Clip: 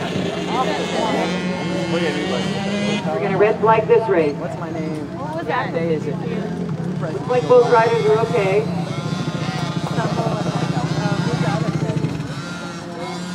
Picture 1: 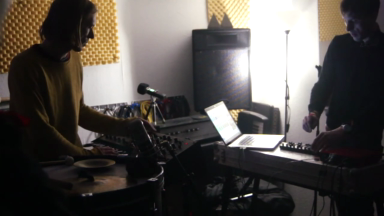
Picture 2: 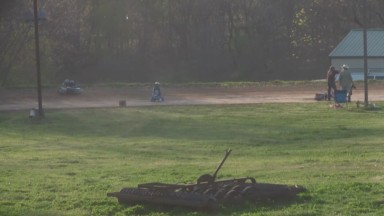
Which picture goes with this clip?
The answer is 2